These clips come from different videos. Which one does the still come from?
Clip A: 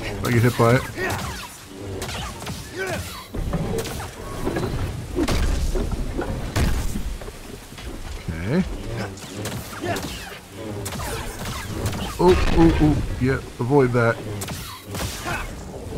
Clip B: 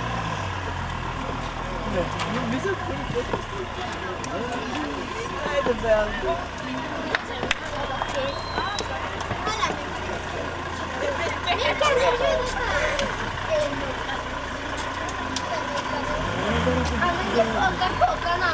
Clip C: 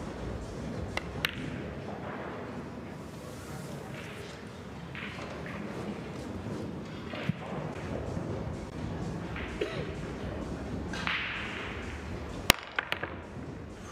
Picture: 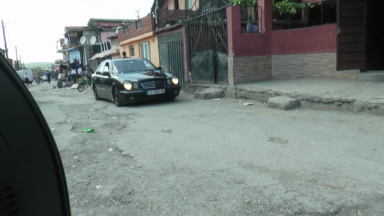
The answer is B